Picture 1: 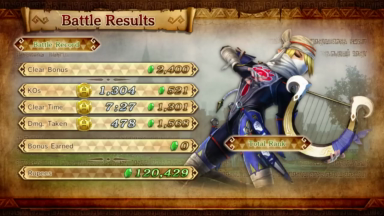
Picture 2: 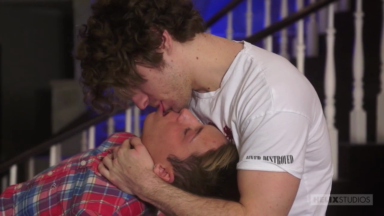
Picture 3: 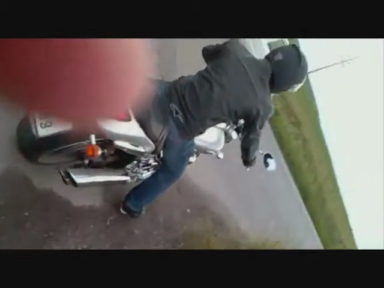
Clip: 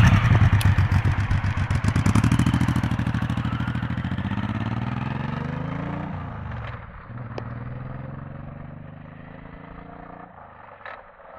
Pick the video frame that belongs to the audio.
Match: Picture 3